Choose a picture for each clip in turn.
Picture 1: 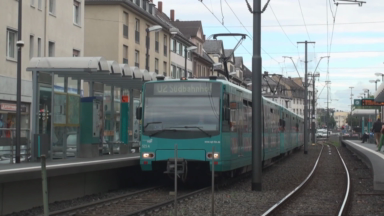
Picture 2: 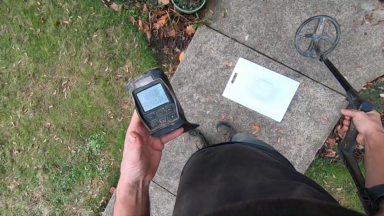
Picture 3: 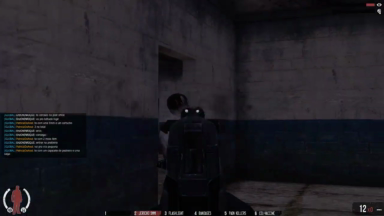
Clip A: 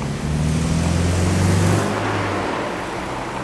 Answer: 1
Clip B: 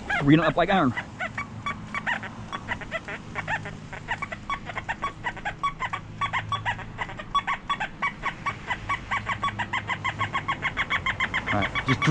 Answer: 2